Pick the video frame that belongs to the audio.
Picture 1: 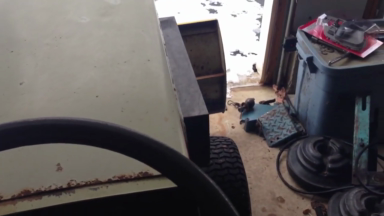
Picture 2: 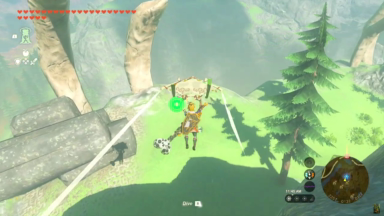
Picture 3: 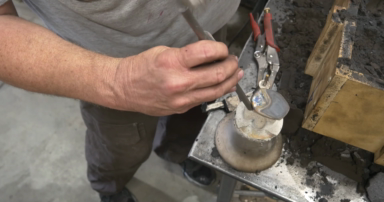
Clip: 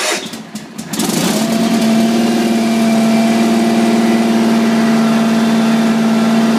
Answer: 1